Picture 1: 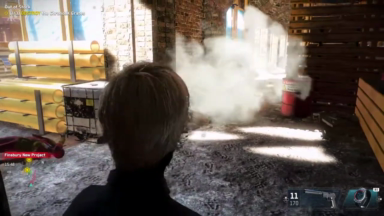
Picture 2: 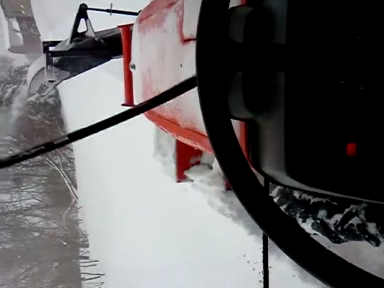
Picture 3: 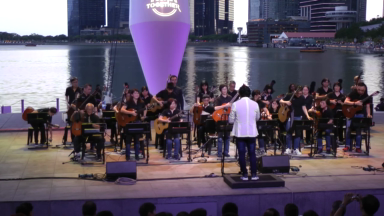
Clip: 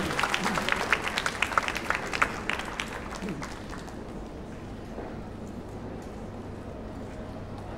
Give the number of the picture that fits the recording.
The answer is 3